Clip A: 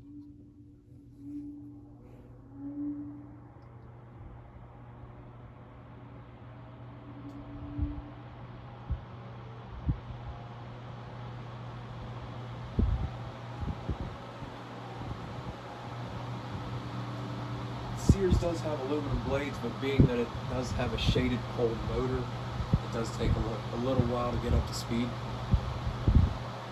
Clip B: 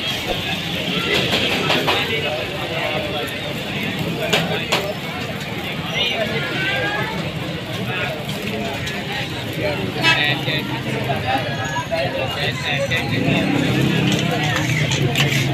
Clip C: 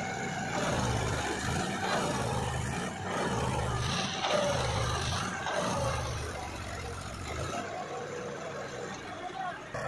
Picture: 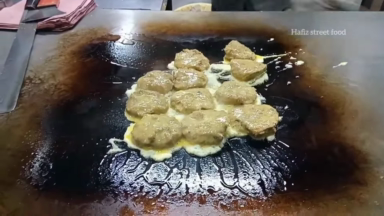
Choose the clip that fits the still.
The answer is B